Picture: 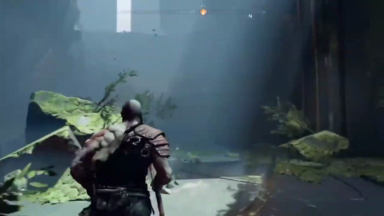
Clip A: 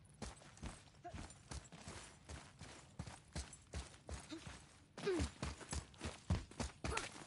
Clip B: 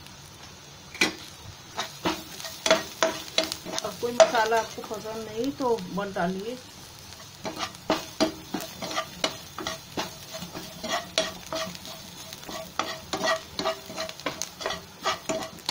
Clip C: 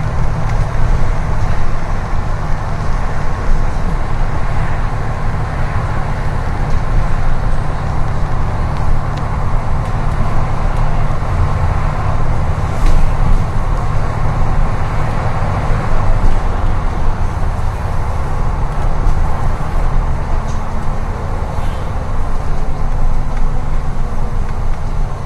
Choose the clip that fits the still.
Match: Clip A